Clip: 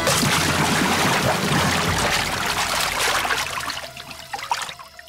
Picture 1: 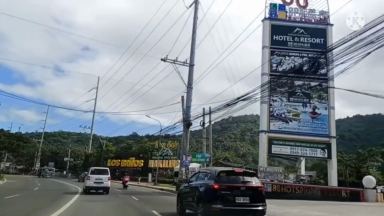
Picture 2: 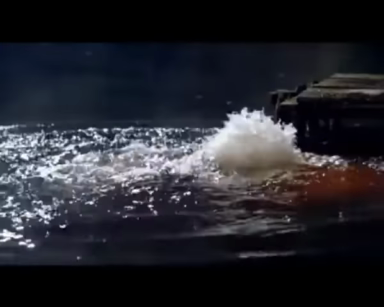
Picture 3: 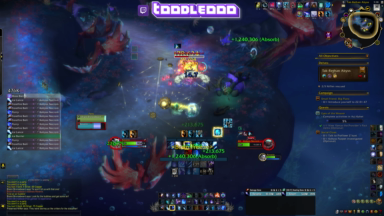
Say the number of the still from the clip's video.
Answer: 2